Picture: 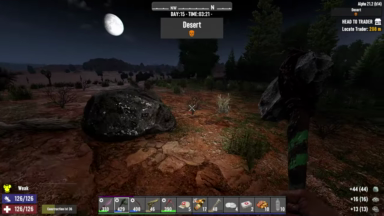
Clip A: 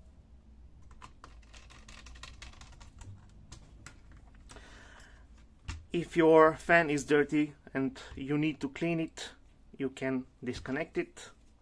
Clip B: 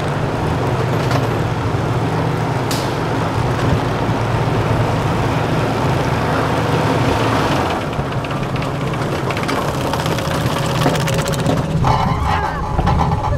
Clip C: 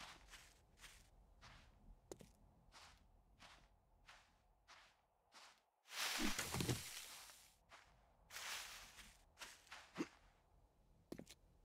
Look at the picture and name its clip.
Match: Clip C